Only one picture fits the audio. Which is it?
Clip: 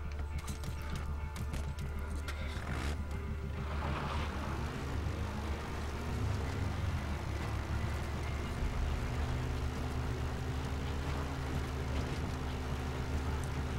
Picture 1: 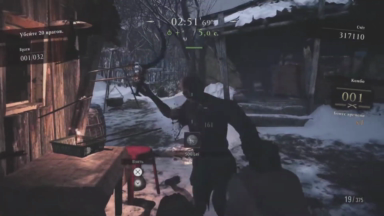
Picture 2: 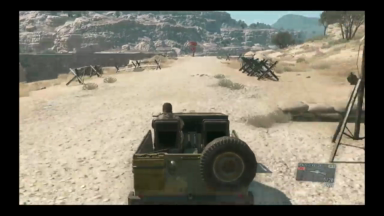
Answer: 2